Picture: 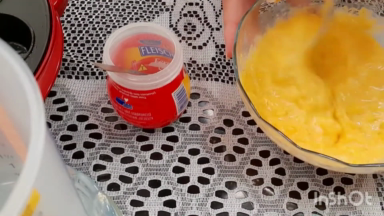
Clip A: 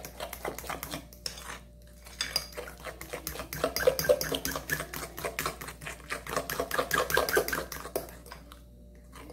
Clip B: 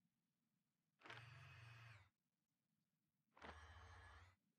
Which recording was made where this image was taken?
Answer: A